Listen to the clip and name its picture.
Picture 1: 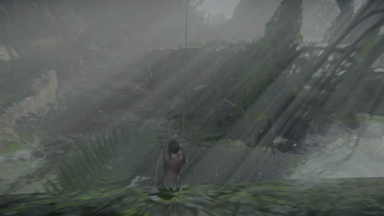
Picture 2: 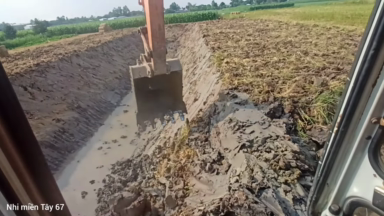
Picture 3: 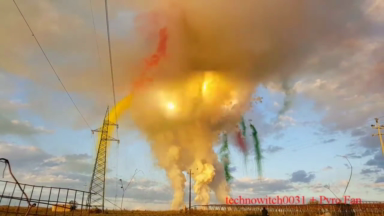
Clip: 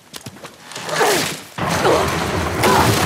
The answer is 1